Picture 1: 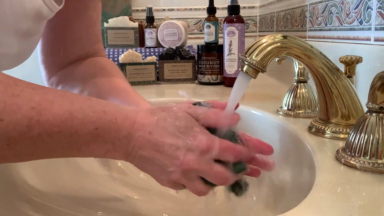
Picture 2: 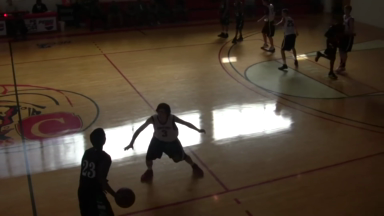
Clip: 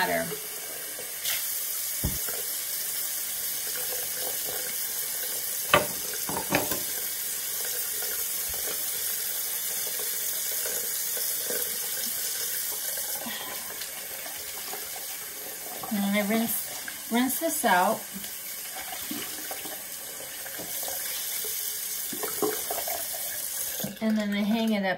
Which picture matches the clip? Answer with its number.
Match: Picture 1